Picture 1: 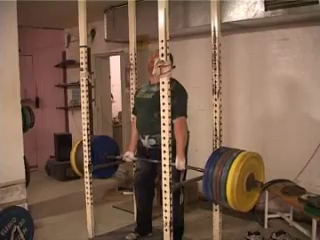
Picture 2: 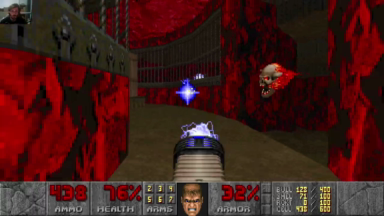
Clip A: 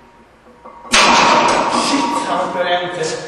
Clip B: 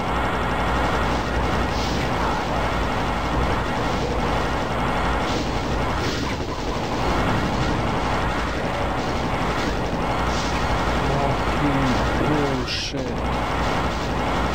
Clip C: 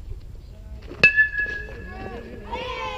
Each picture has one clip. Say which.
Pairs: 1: A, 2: B